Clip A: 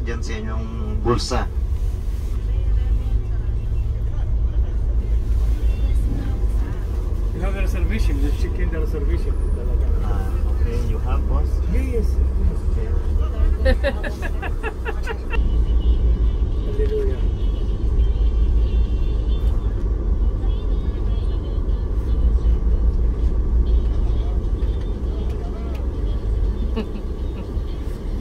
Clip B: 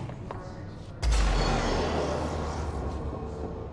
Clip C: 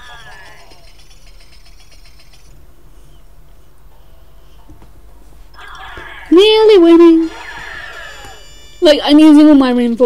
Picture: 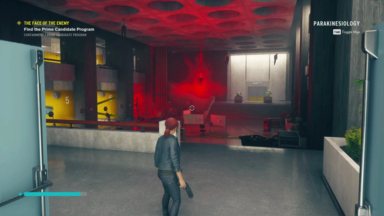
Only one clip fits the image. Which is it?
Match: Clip B